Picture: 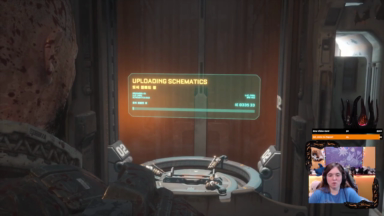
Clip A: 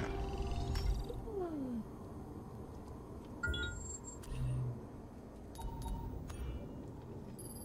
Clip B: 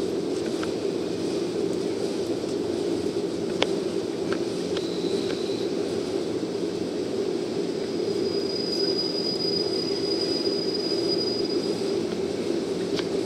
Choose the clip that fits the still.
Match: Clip A